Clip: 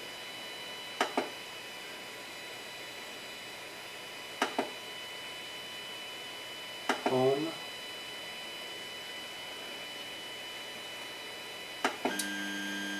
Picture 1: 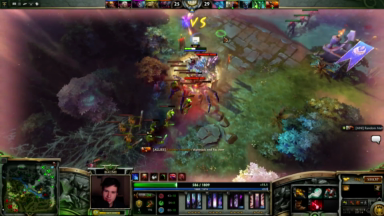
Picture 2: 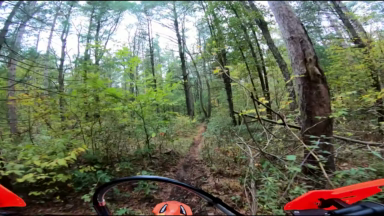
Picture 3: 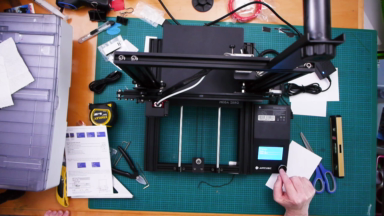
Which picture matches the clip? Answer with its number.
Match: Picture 3